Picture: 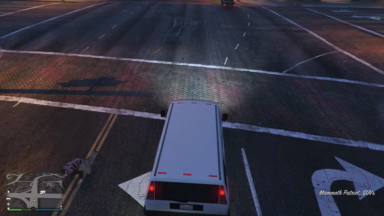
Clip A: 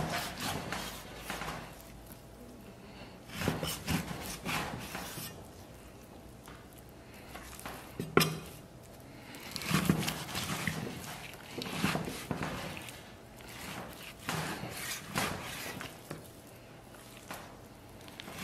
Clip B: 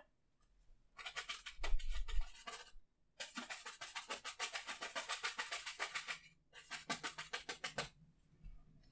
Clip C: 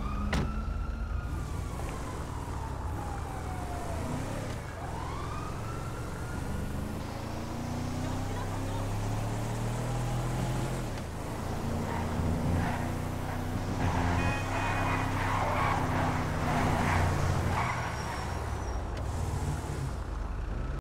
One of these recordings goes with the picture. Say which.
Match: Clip C